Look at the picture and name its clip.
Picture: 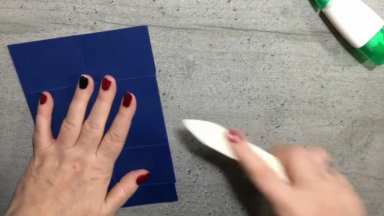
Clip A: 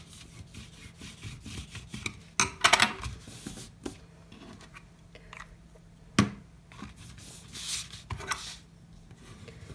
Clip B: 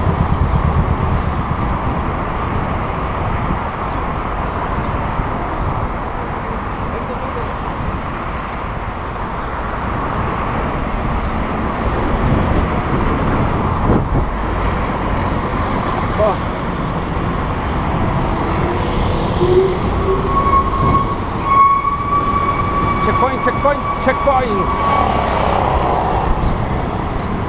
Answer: A